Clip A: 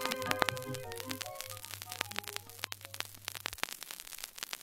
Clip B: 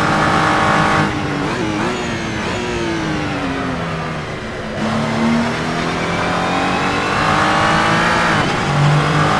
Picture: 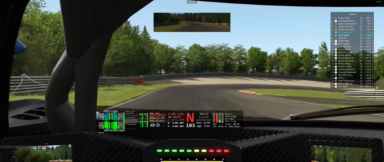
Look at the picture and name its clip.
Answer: B